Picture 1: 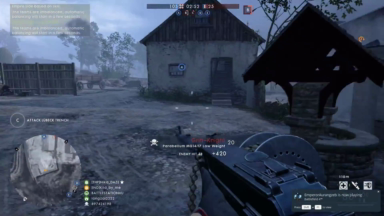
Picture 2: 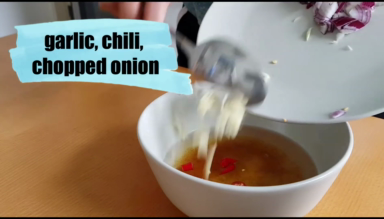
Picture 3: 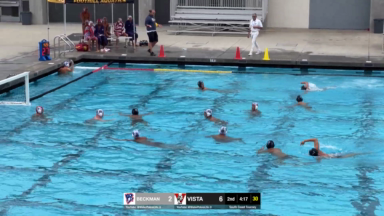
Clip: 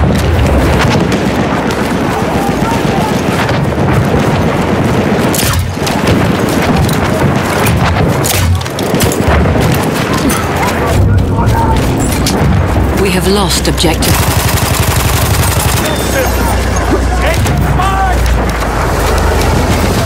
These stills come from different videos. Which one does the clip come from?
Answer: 1